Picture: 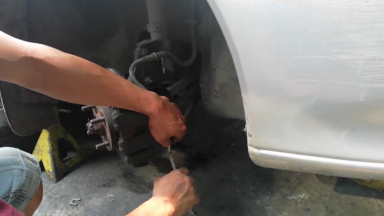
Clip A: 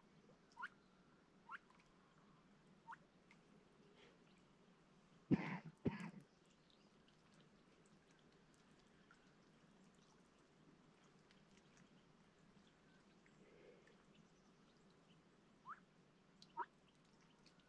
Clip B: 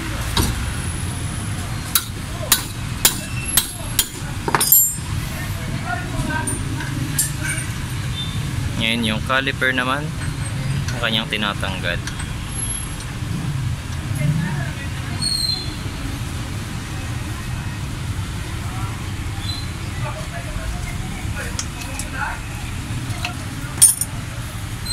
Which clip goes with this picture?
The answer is B